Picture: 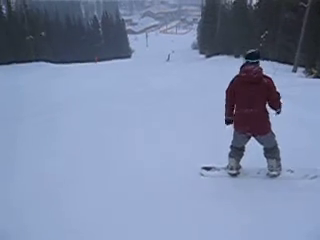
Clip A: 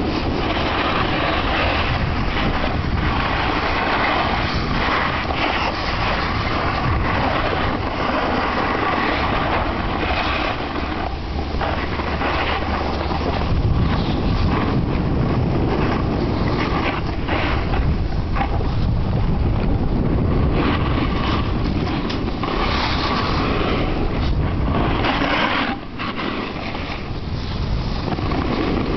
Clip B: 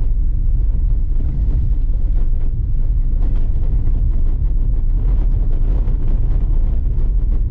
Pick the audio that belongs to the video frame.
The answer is A